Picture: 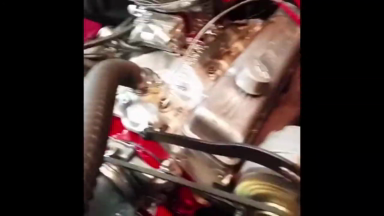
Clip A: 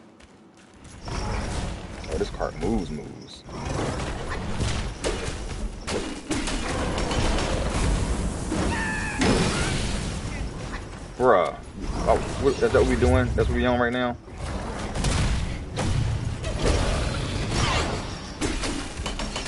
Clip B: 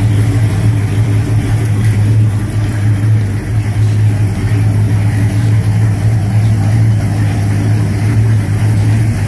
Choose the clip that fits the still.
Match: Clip B